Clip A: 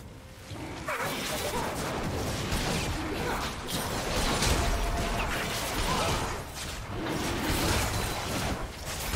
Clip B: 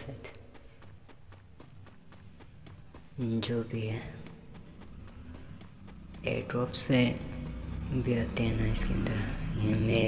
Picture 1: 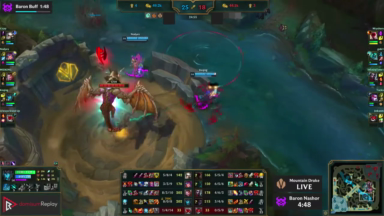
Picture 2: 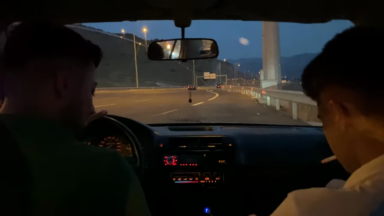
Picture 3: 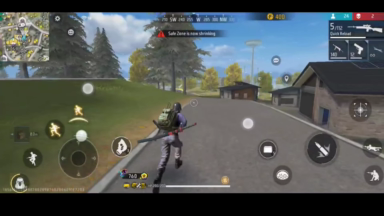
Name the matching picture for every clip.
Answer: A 1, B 3